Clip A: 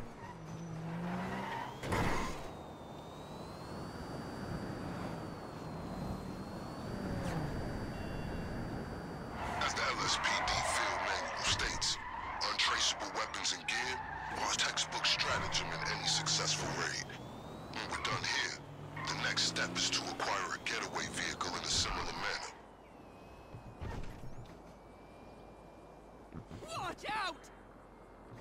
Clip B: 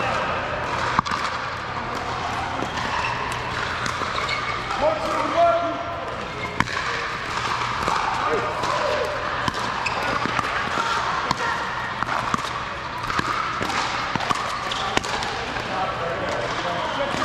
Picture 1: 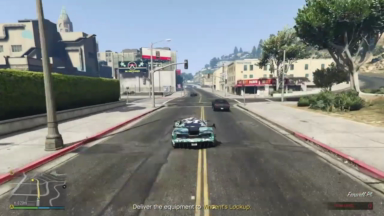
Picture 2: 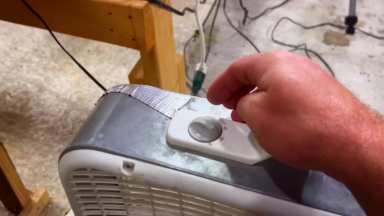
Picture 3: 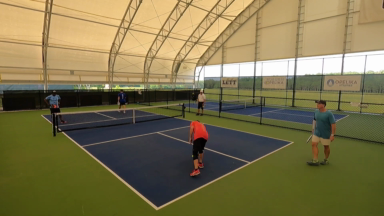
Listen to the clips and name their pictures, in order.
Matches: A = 1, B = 3